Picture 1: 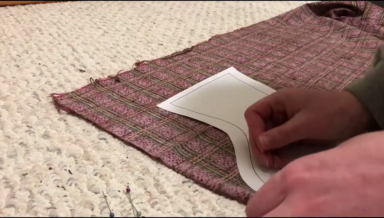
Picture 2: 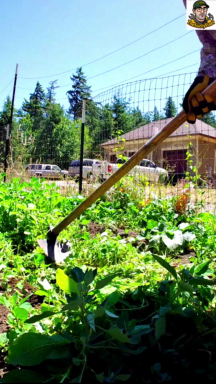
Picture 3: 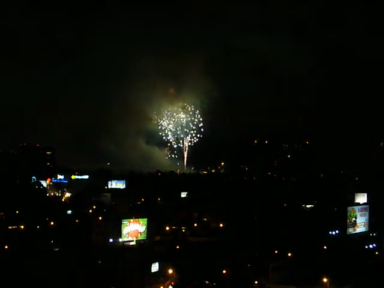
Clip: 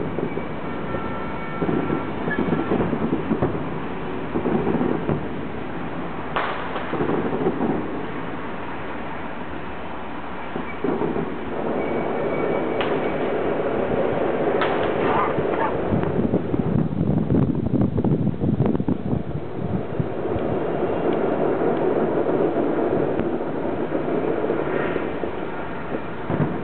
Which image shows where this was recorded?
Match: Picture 3